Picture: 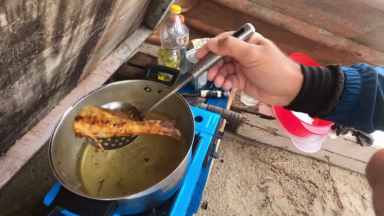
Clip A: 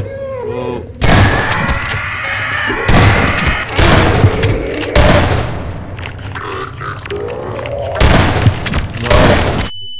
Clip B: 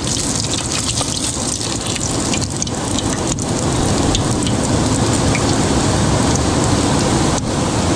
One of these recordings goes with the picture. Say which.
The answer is B